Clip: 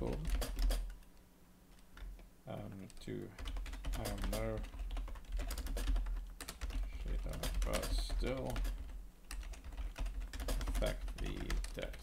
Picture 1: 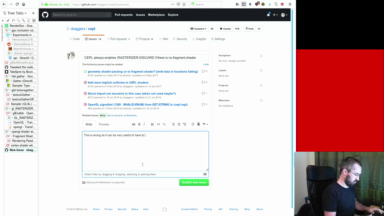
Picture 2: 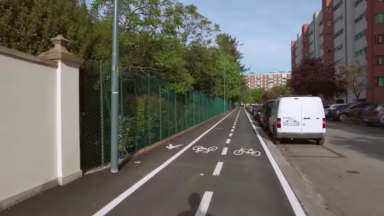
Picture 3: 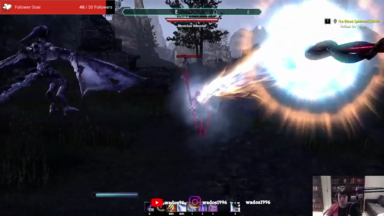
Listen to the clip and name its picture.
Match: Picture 1